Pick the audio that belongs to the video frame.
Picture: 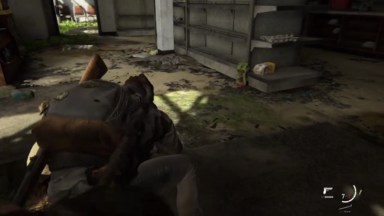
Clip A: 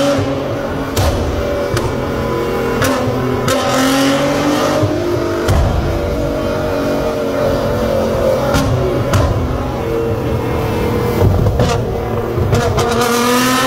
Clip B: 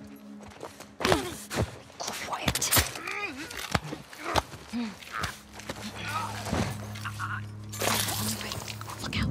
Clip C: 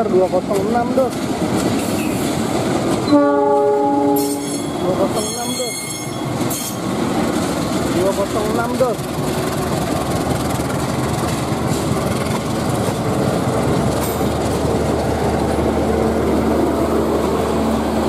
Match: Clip B